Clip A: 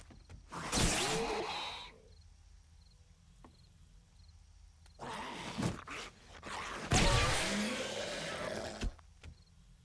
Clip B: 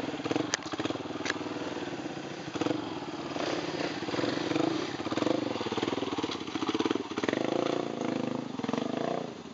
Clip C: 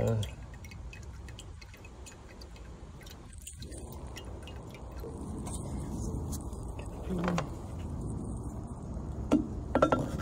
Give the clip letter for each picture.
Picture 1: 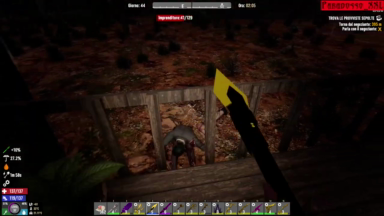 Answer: A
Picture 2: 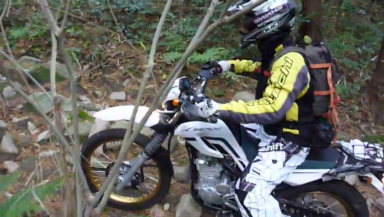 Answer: B